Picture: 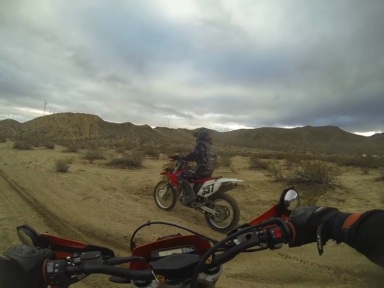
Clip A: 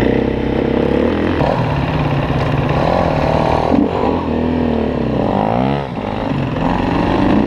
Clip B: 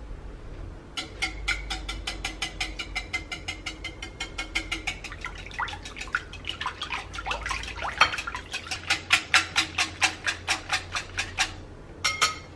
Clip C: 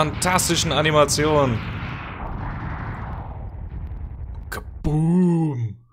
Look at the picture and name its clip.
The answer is A